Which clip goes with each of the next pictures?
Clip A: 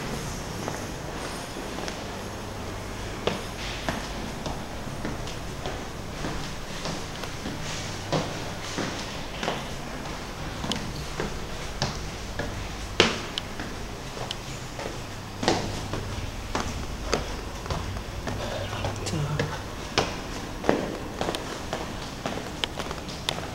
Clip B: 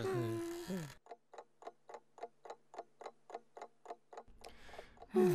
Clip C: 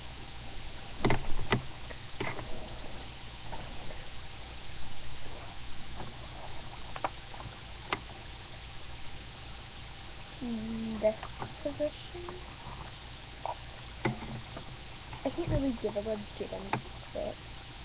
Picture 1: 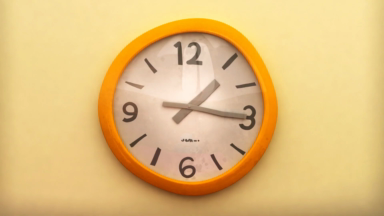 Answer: B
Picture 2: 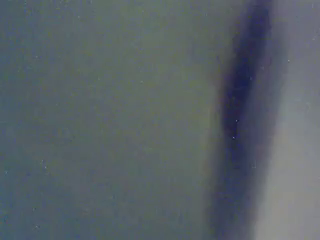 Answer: C